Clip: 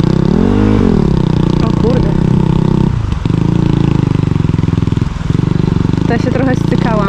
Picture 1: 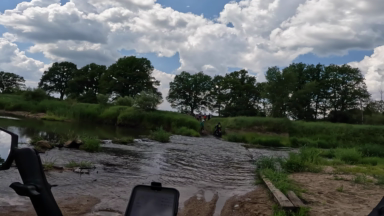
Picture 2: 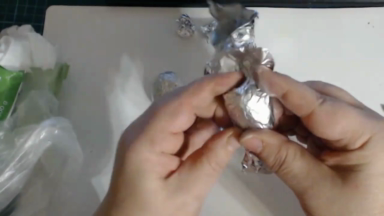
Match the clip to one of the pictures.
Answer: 1